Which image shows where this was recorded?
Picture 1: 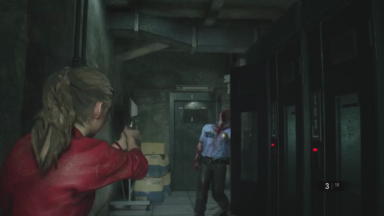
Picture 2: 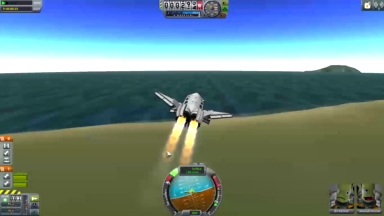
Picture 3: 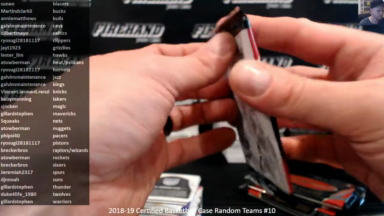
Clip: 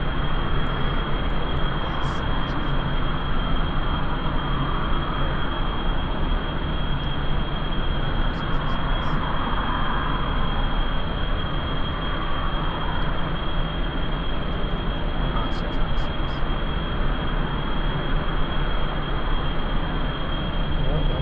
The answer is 2